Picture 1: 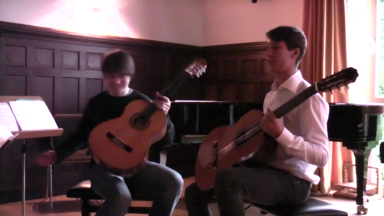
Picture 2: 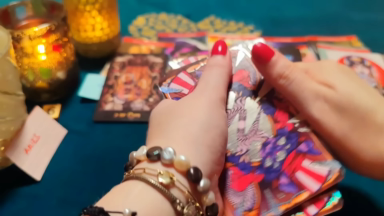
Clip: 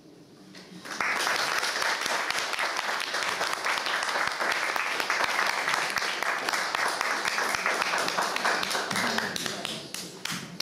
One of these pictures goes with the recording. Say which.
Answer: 1